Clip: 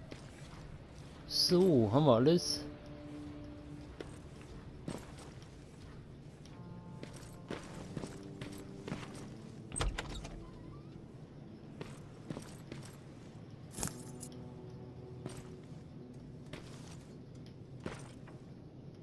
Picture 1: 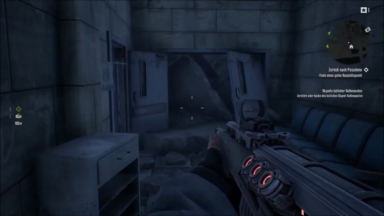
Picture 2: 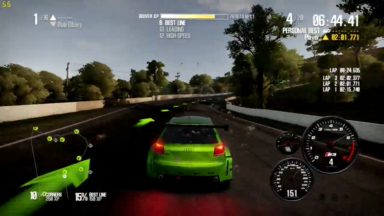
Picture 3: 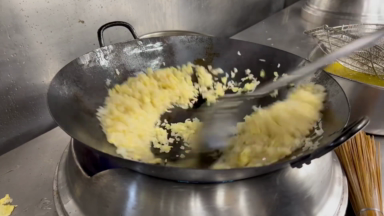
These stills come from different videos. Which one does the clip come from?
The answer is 1